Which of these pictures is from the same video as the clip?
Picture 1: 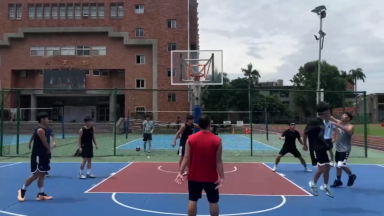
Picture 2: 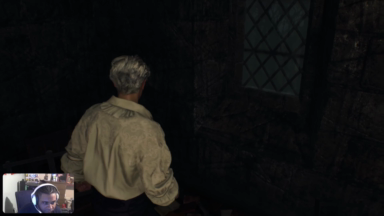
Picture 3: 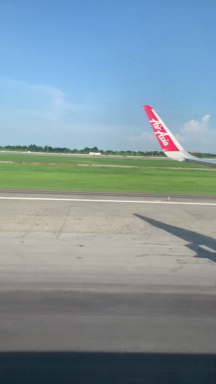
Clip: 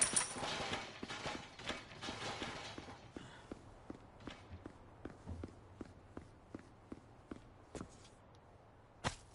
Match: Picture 2